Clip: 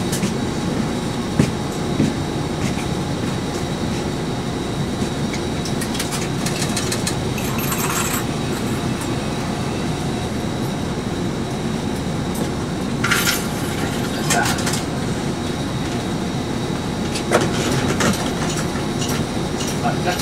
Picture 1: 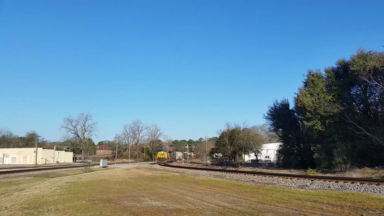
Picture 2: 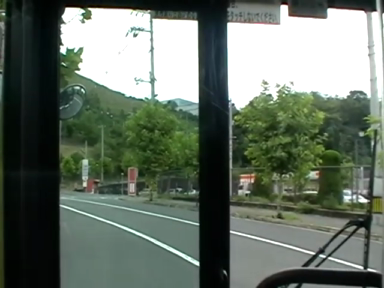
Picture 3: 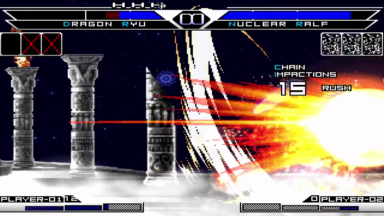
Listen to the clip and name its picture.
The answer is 2